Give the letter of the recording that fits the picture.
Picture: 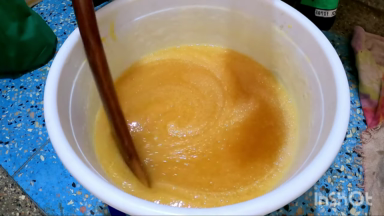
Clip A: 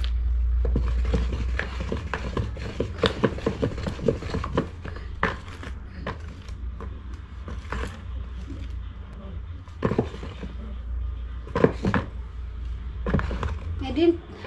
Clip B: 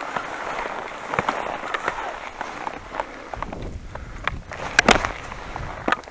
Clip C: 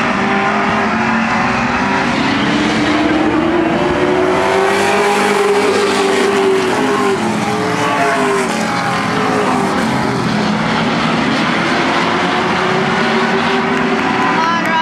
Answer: A